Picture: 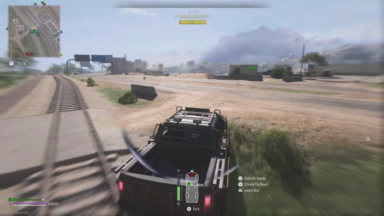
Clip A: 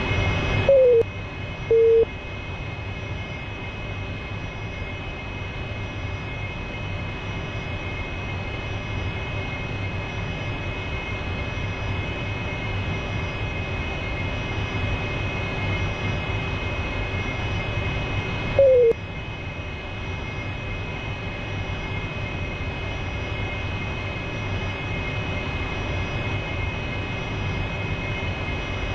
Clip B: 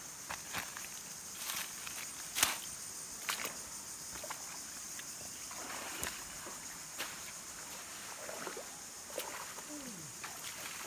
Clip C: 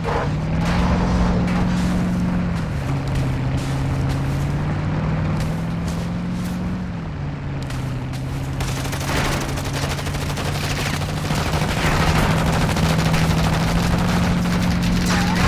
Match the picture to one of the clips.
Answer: C